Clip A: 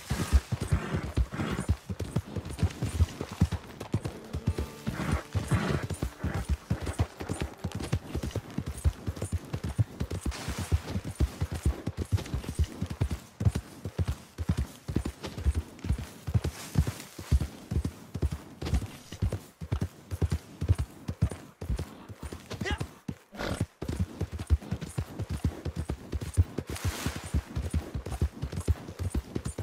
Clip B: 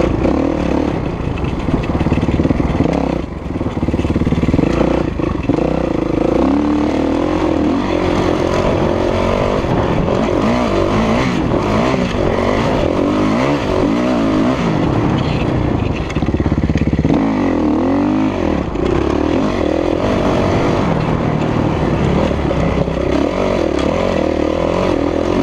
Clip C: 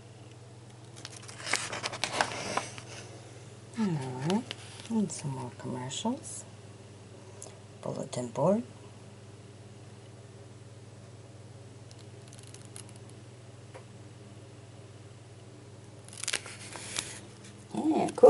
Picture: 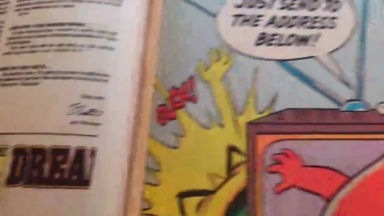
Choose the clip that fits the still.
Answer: C